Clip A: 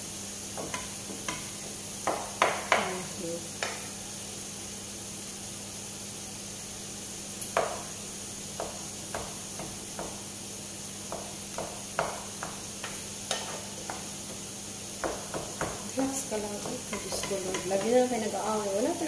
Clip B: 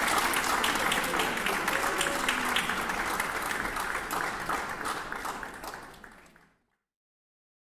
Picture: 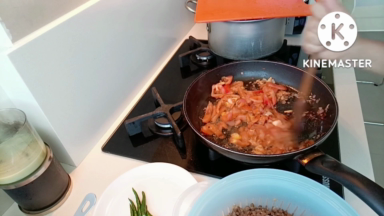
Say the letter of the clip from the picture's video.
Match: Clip A